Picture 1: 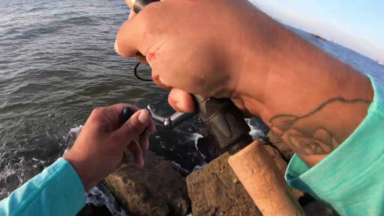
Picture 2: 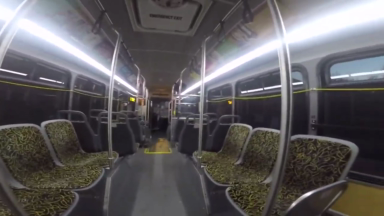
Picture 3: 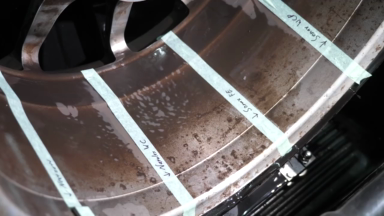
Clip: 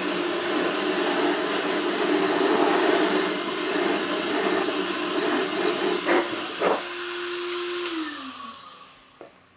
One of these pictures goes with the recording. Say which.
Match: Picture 3